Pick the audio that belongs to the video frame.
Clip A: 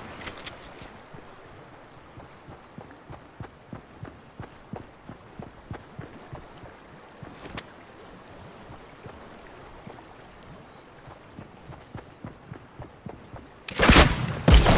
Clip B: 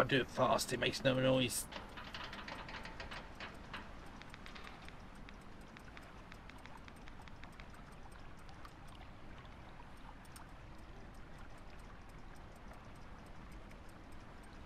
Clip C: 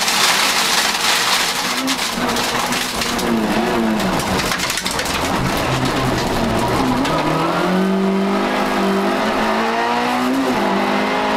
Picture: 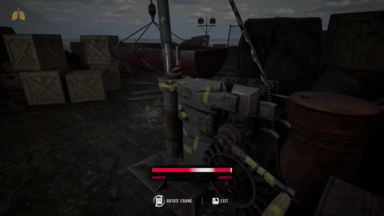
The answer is B